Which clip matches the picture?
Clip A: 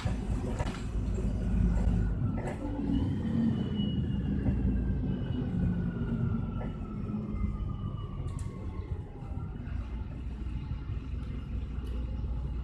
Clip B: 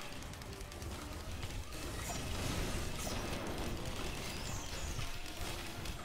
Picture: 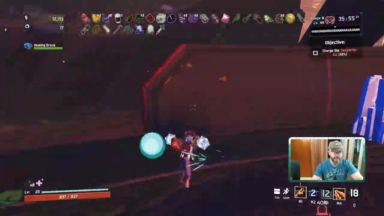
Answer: B